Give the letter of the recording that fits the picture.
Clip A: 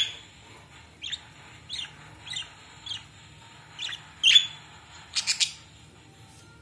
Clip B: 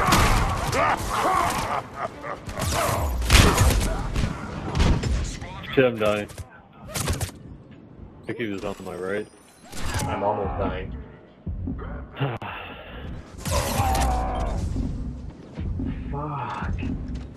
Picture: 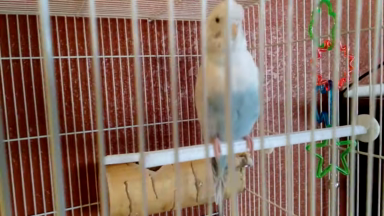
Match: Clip A